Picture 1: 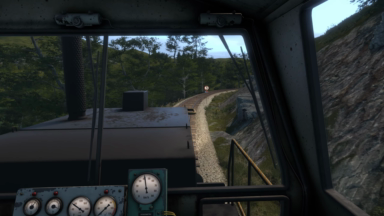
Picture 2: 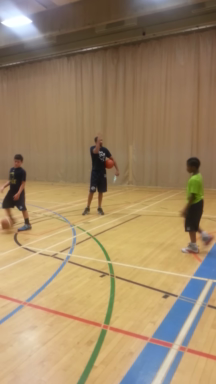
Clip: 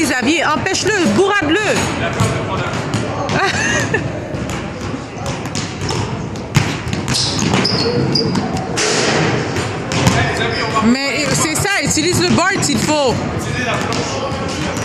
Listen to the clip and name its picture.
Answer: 2